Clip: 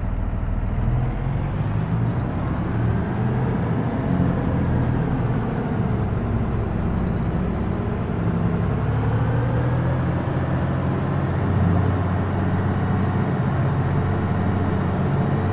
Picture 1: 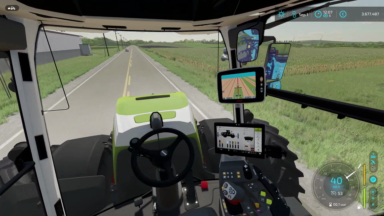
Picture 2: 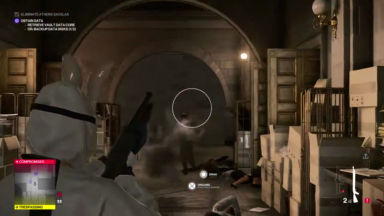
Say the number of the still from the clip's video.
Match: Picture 1